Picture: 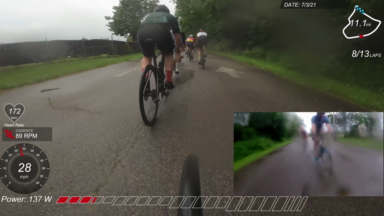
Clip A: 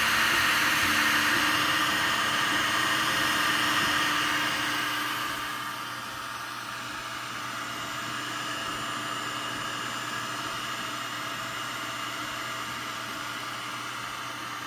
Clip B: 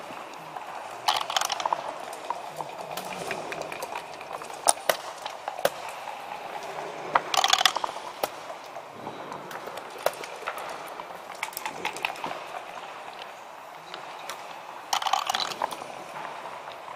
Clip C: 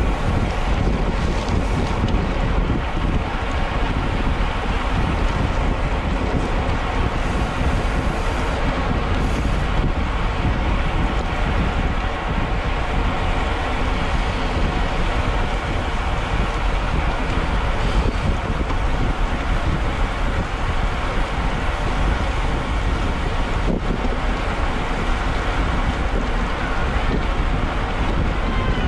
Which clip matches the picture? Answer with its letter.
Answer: C